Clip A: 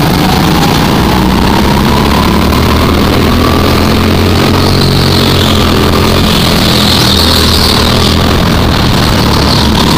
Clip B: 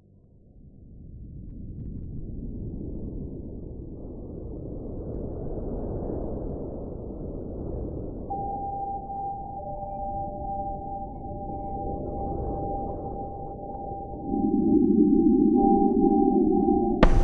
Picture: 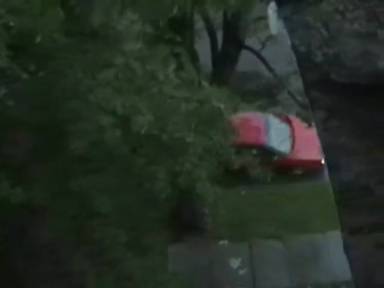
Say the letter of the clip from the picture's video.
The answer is B